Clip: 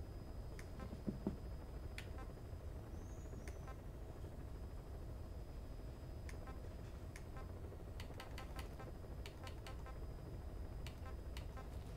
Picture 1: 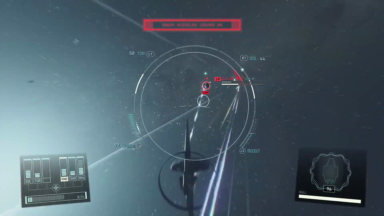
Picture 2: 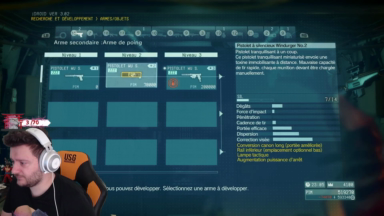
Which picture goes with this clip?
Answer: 2